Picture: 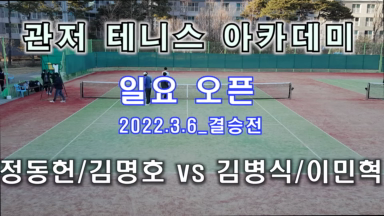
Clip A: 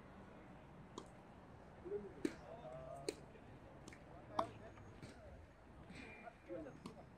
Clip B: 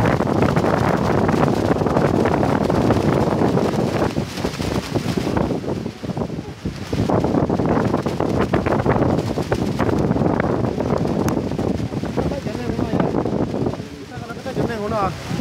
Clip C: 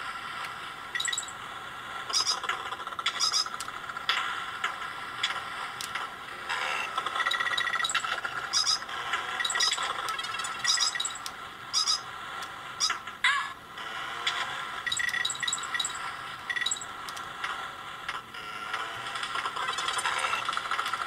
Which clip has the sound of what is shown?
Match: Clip A